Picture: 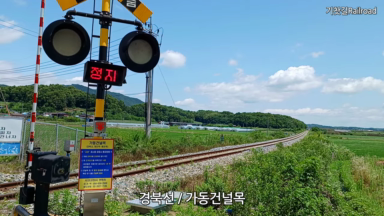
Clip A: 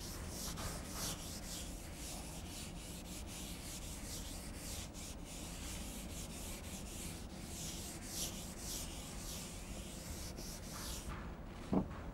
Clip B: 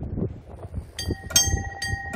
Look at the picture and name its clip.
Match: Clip B